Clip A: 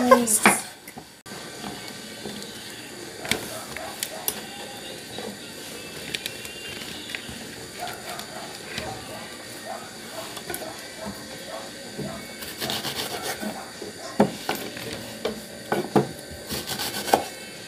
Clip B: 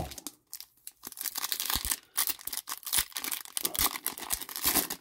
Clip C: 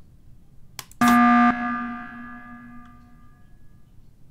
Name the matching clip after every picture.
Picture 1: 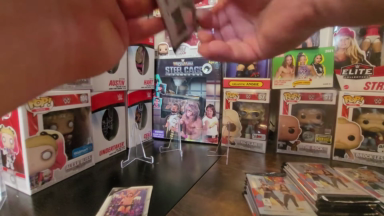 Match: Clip B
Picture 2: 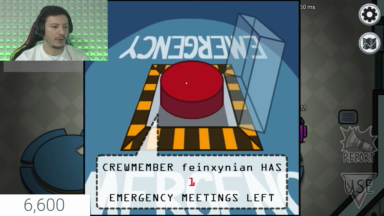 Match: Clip C